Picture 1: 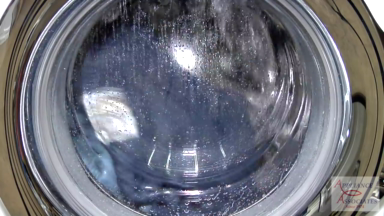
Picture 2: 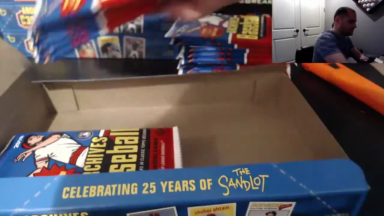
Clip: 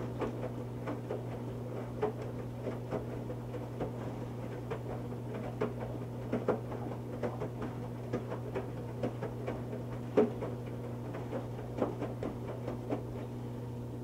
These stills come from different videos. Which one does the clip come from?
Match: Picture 1